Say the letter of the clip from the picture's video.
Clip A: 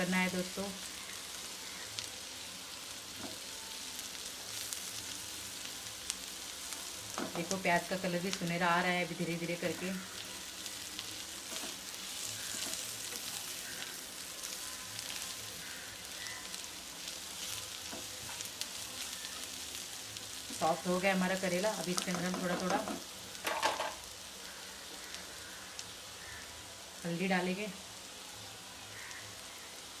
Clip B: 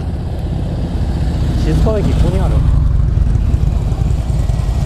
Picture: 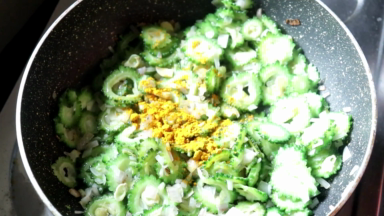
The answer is A